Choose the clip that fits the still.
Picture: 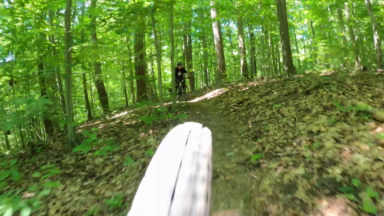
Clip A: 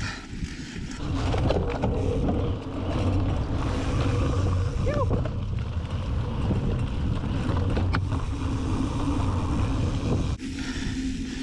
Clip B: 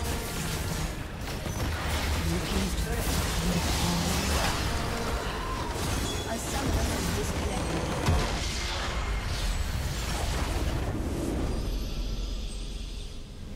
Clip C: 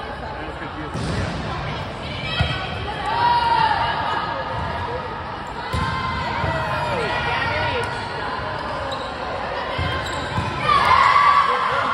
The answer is A